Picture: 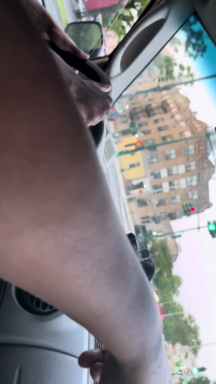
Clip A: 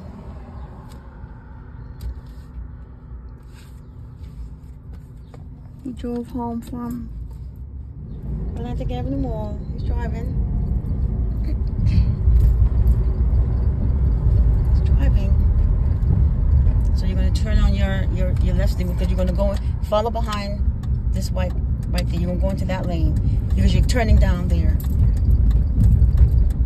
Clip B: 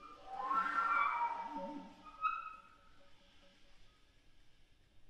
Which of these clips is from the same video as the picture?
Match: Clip A